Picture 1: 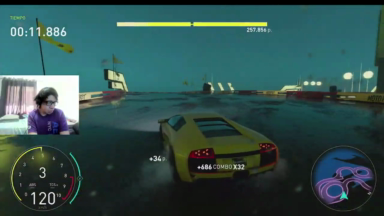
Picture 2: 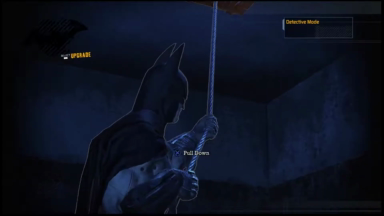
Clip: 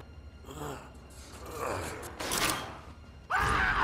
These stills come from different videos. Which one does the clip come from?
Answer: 2